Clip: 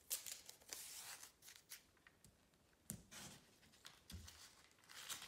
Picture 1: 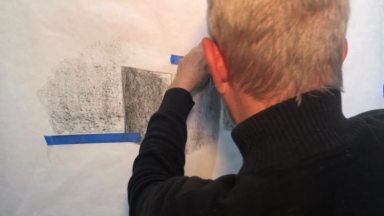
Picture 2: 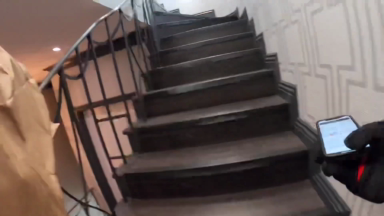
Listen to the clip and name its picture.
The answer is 1